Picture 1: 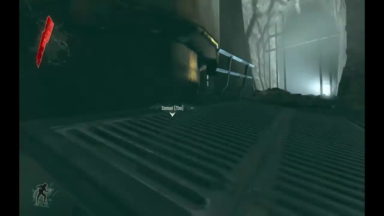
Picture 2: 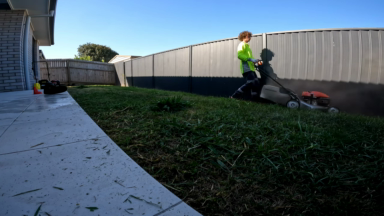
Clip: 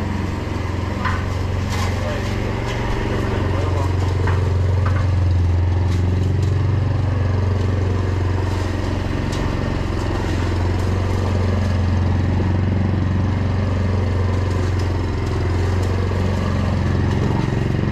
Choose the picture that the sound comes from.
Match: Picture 2